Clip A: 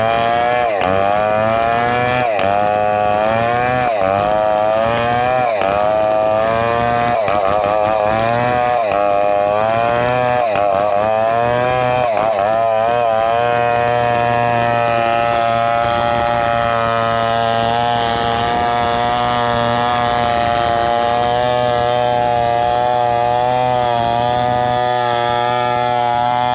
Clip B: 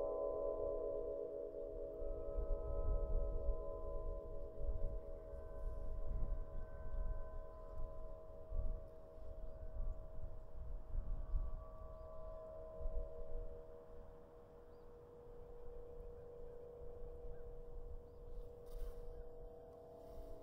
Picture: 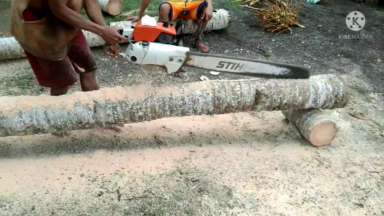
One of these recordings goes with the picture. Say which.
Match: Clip A